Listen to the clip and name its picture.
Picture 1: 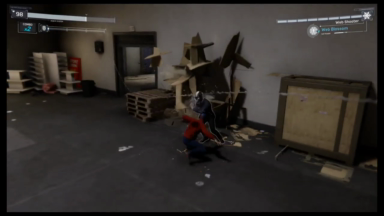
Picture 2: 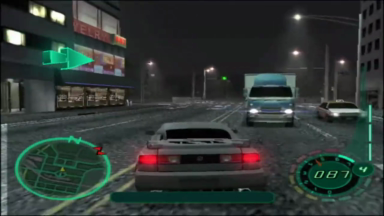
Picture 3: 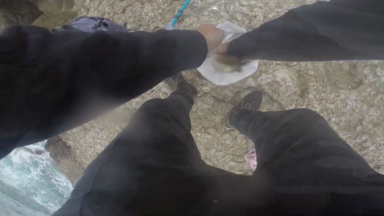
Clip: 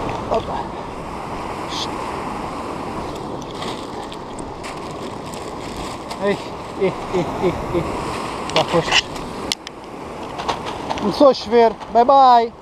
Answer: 3